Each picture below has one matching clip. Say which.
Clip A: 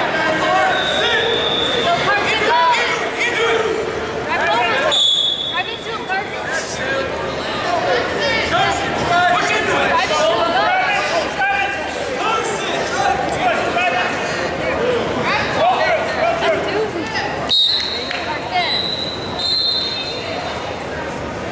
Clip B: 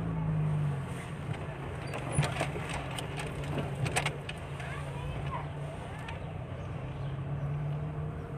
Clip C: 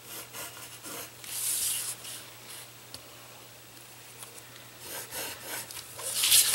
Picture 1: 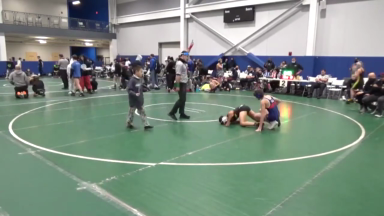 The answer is A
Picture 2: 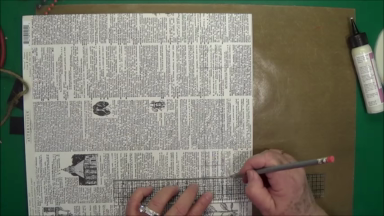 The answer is C